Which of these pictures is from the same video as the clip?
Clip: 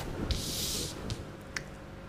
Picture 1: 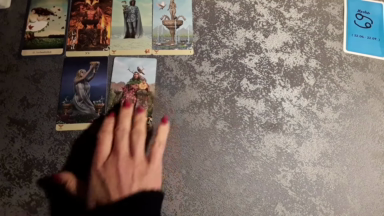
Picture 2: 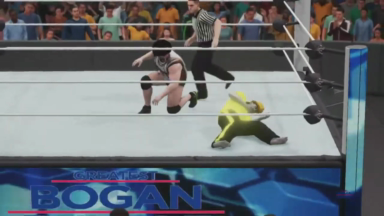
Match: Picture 1